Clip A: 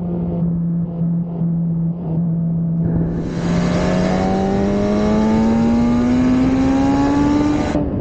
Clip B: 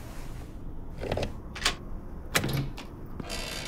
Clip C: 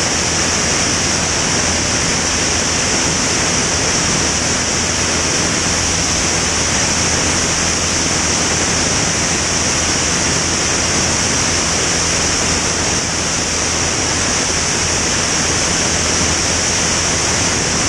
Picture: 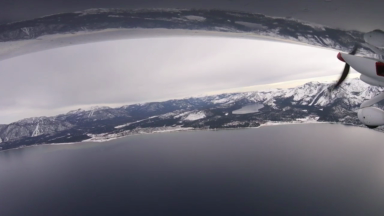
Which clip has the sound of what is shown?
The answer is C